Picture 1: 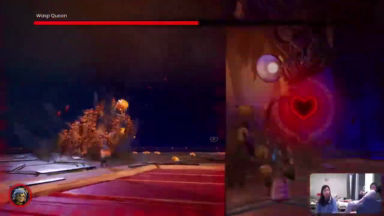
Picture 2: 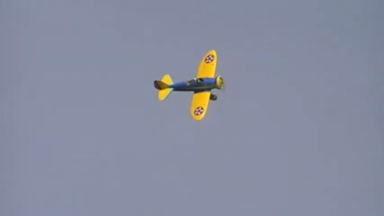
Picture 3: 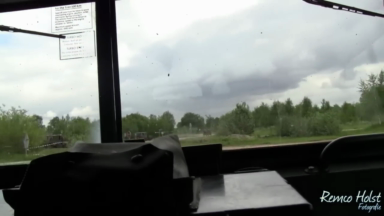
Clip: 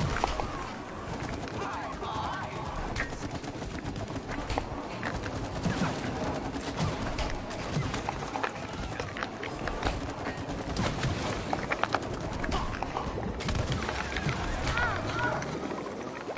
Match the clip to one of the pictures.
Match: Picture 1